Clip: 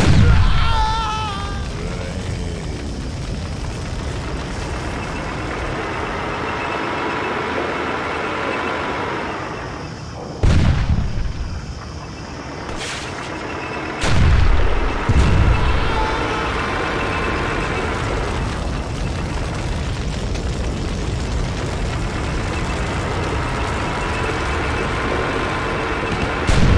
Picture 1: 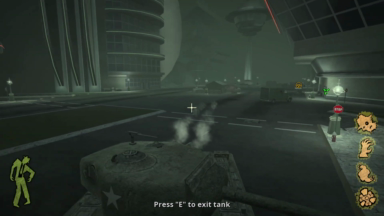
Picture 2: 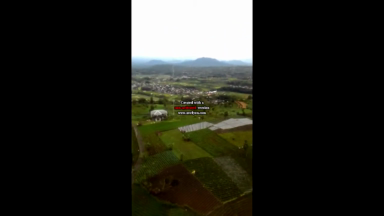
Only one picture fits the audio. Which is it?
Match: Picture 1